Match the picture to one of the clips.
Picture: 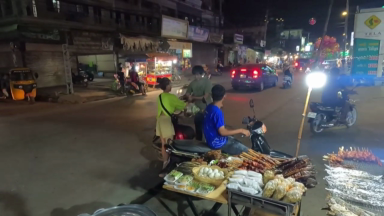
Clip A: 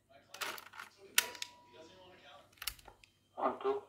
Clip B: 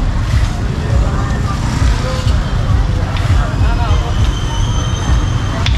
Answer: B